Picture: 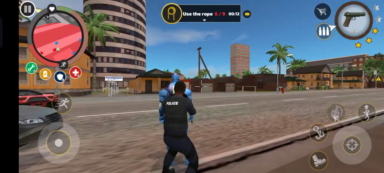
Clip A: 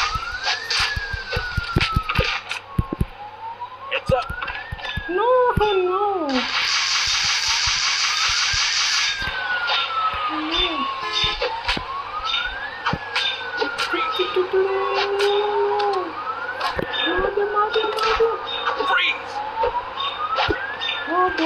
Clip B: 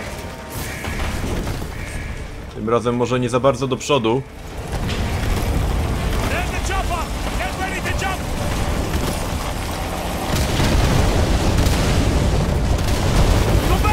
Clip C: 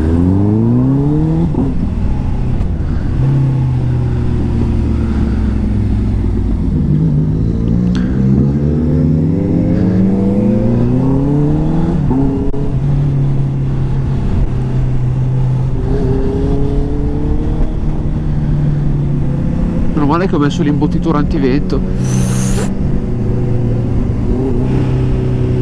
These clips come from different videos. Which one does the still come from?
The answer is A